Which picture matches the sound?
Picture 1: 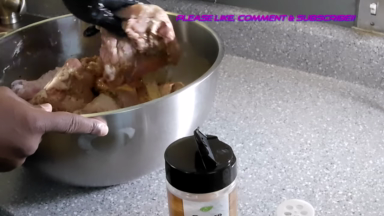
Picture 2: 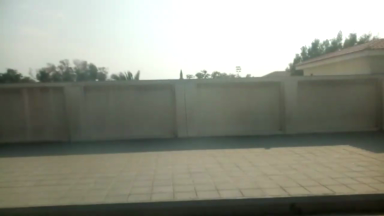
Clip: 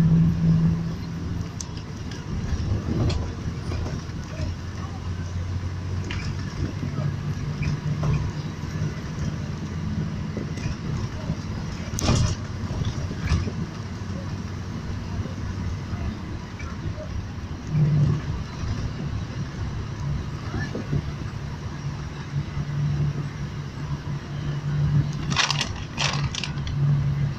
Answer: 2